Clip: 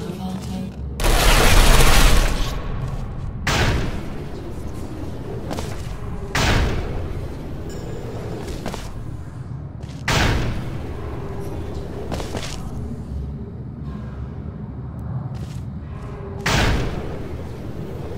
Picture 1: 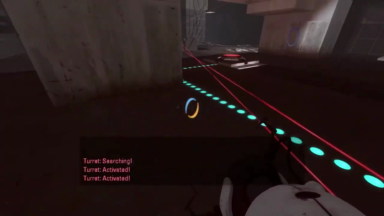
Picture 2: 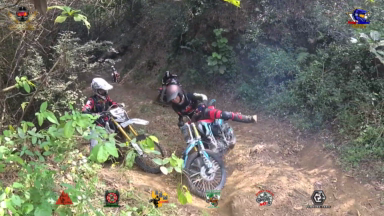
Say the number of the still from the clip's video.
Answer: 1